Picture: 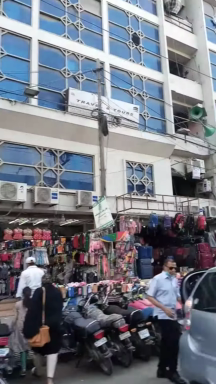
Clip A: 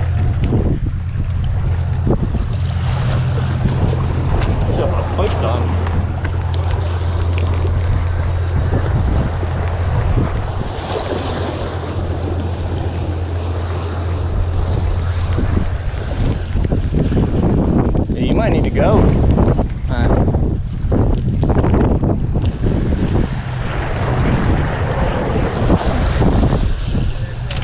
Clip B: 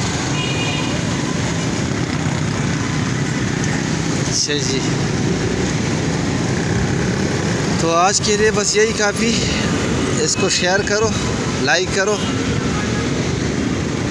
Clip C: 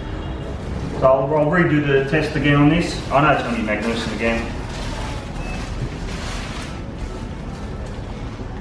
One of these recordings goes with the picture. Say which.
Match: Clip B